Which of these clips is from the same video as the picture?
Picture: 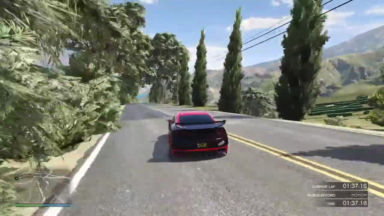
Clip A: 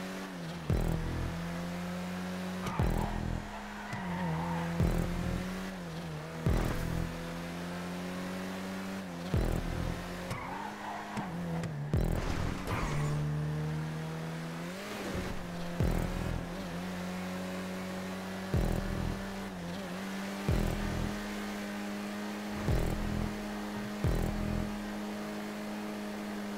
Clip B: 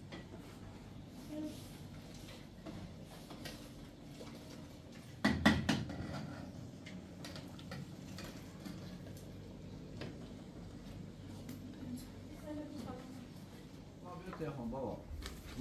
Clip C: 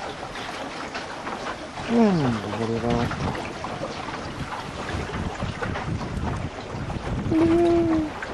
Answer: A